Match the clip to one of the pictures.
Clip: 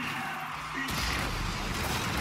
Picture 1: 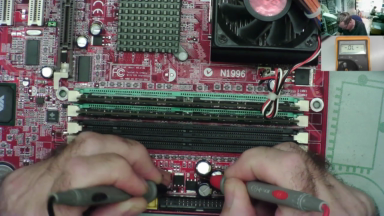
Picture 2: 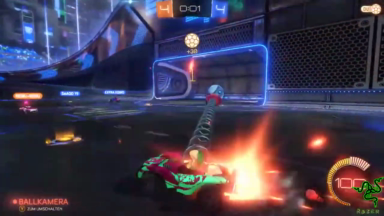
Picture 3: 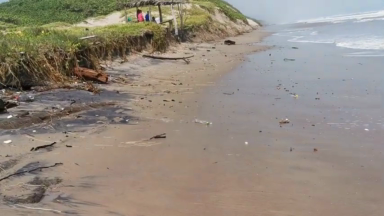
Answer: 2